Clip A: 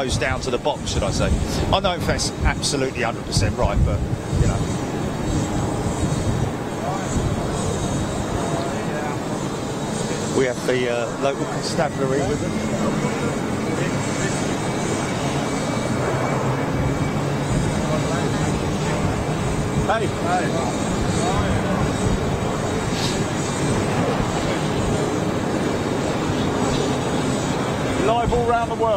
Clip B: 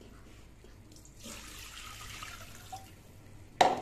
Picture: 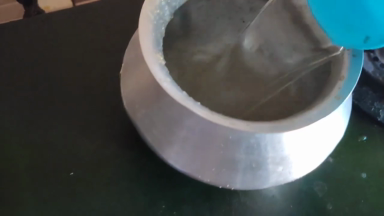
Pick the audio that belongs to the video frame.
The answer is B